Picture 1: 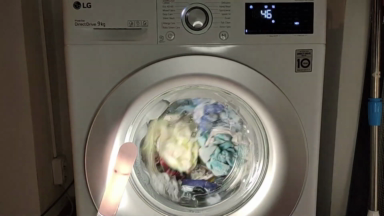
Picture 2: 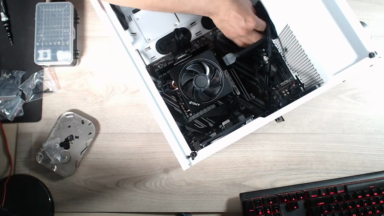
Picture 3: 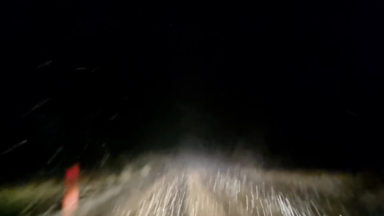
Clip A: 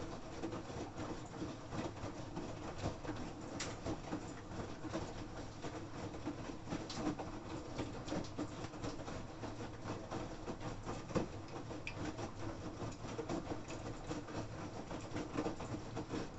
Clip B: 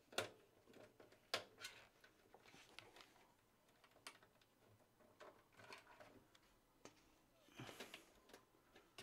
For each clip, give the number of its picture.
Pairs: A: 1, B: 2